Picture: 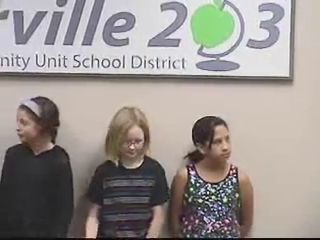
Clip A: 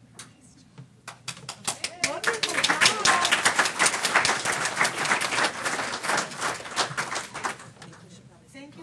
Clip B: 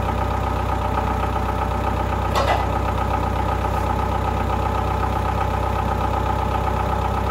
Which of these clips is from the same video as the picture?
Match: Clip A